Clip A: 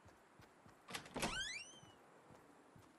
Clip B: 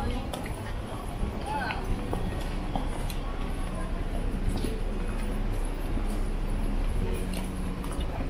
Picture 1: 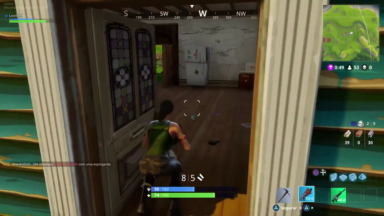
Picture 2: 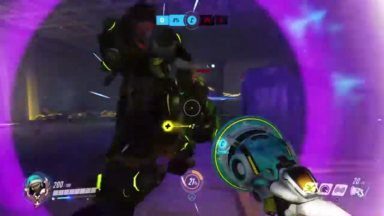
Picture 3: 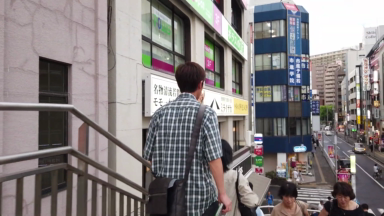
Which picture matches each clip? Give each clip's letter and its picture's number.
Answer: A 1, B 3